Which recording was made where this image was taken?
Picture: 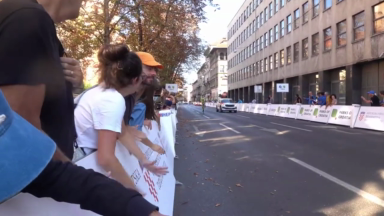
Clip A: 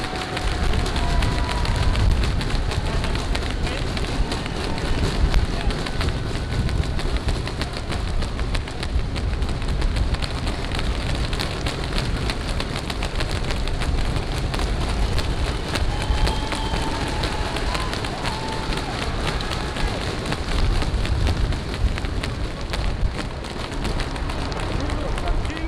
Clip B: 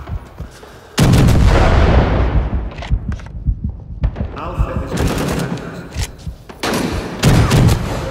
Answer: A